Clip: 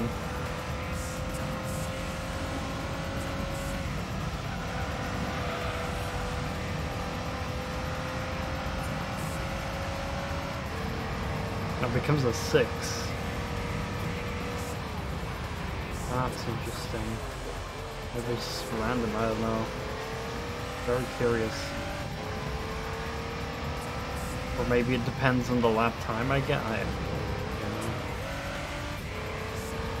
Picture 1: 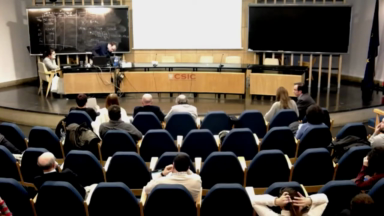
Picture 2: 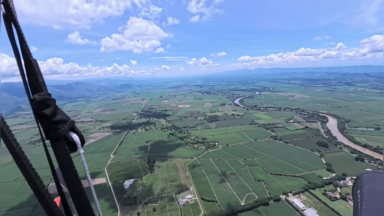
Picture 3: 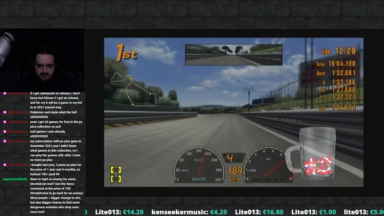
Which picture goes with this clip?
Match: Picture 3